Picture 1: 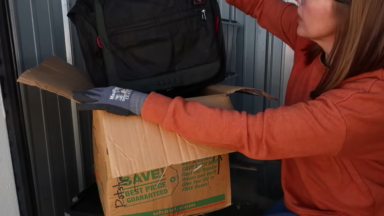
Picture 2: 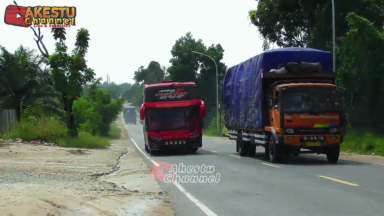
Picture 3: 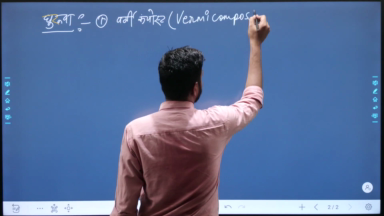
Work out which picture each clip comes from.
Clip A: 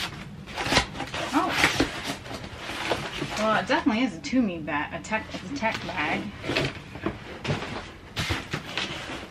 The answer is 1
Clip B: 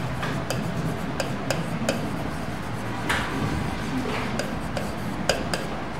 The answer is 3